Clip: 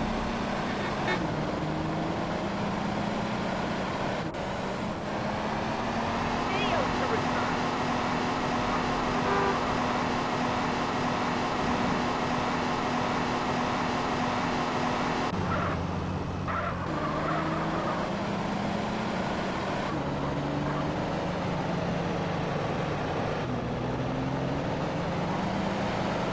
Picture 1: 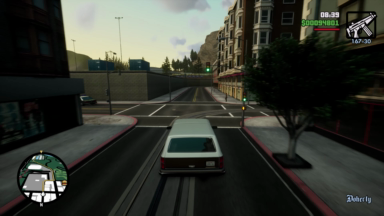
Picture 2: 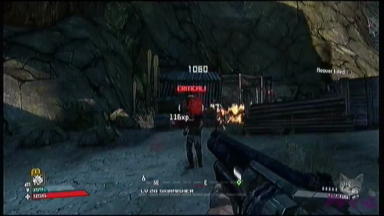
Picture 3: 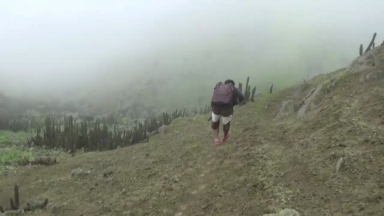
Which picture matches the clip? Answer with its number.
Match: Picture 1